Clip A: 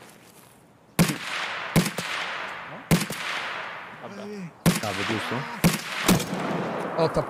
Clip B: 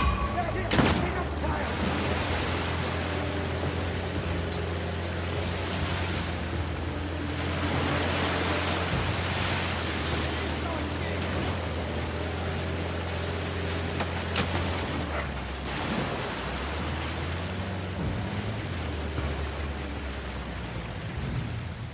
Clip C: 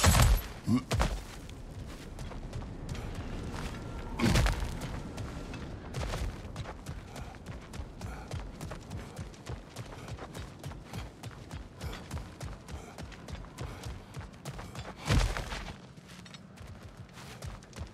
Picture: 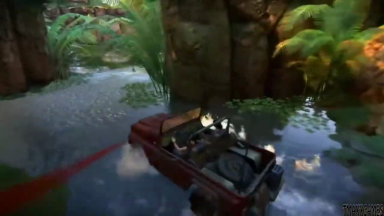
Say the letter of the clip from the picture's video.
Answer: B